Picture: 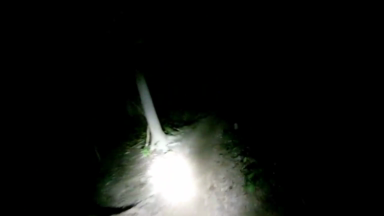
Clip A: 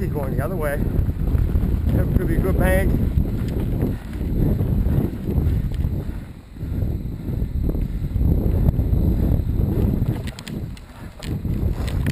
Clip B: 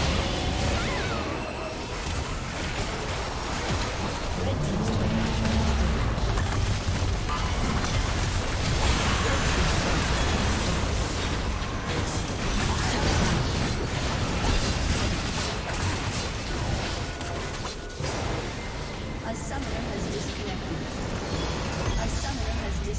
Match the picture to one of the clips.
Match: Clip A